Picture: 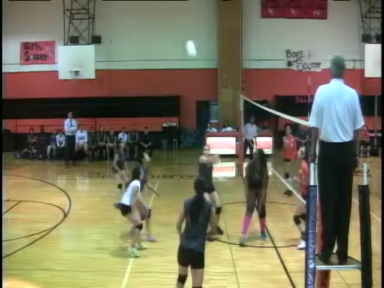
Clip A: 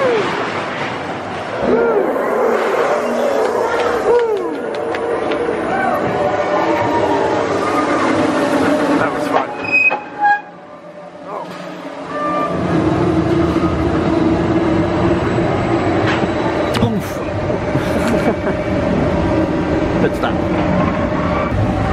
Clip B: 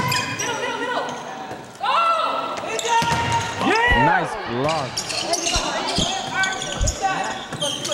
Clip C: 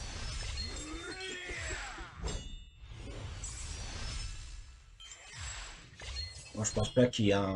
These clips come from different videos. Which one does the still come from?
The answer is B